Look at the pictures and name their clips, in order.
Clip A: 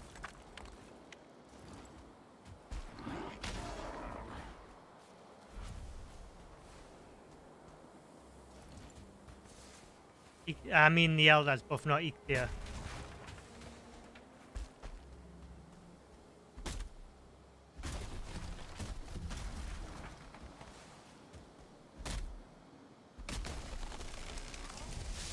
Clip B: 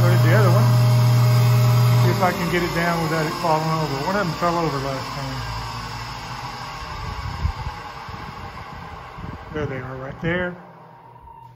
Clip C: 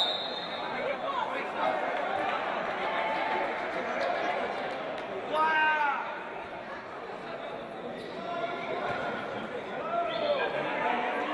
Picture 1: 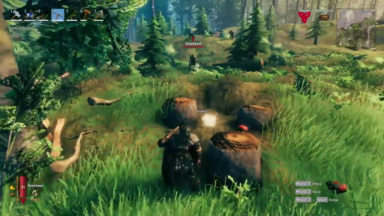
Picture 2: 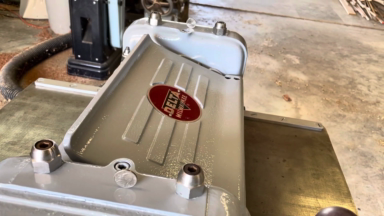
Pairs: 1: A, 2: B